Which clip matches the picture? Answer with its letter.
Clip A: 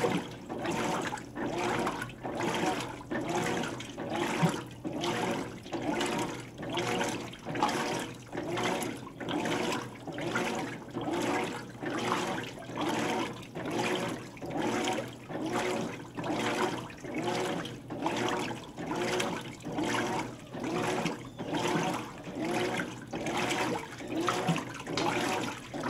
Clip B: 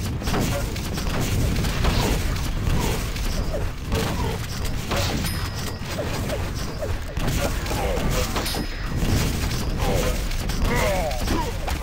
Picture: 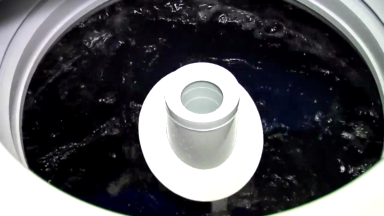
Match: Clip A